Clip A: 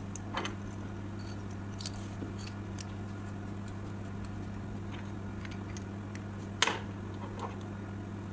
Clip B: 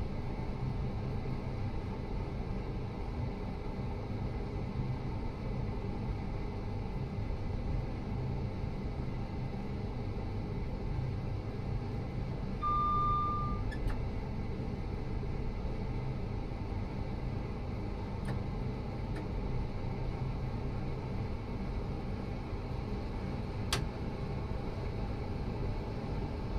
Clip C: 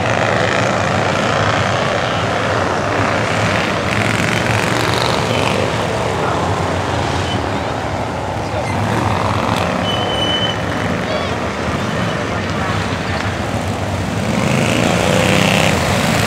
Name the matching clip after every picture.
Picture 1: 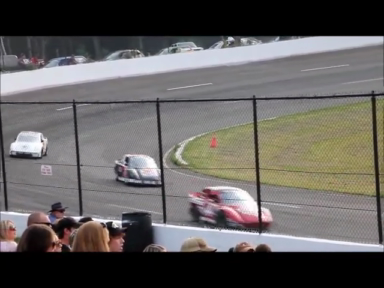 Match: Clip C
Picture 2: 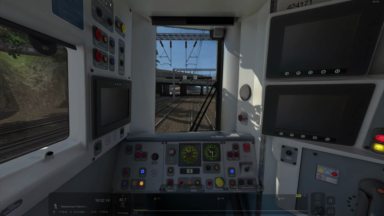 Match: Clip B